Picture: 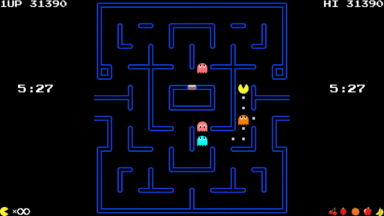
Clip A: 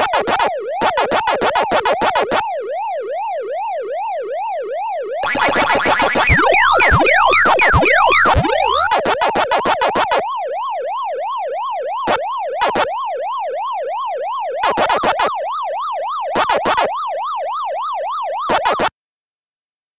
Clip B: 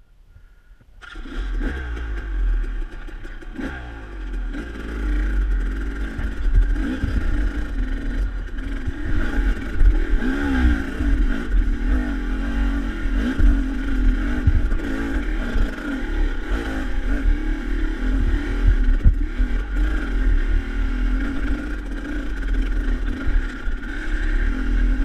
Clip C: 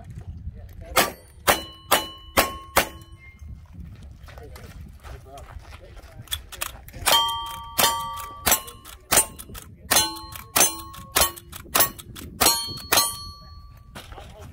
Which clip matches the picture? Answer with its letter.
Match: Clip A